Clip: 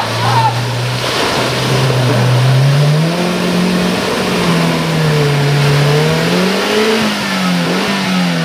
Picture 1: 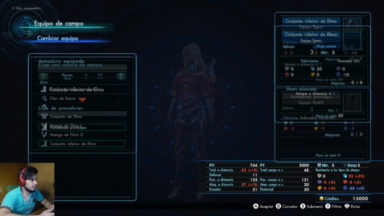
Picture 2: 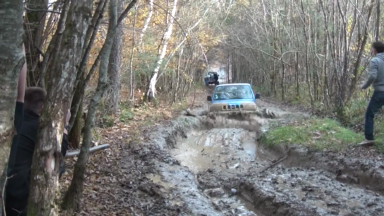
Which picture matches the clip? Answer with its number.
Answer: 2